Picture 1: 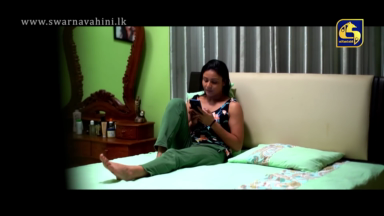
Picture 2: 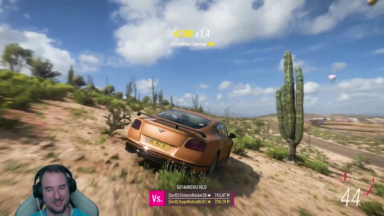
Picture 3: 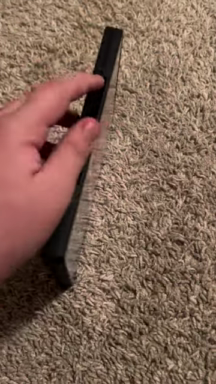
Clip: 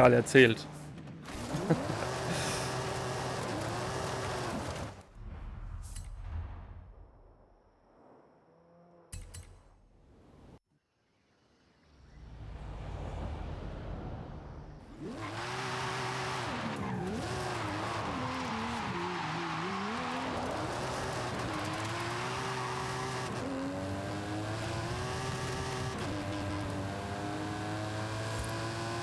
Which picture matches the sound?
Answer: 2